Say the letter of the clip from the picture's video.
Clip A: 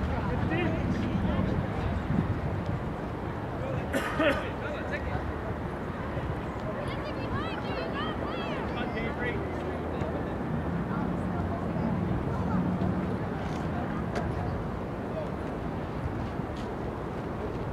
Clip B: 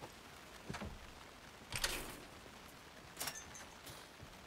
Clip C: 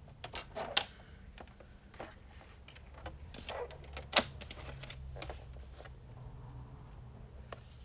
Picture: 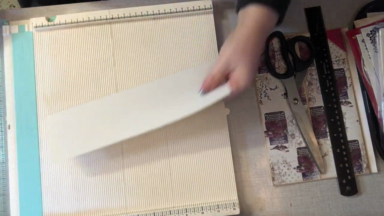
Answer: C